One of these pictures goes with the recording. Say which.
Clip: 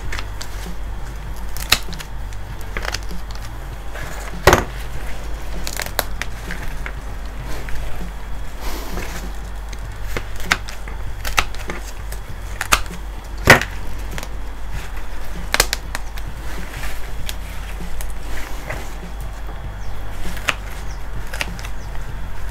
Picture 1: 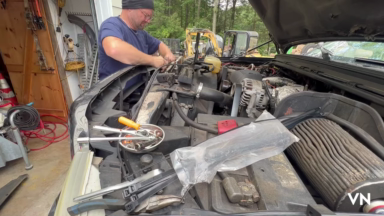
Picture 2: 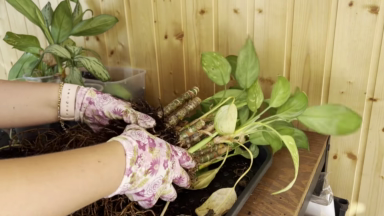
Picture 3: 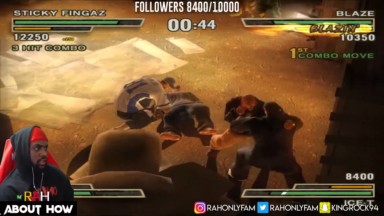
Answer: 2